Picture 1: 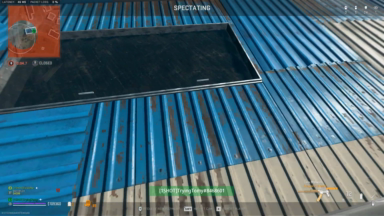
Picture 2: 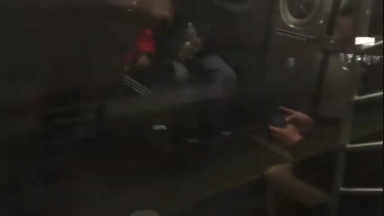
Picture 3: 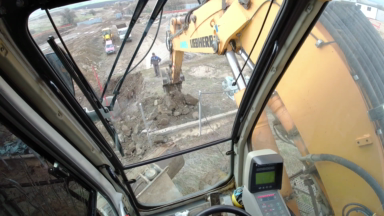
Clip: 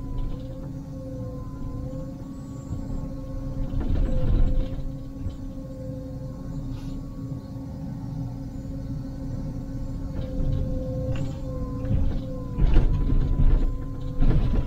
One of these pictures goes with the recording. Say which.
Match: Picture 3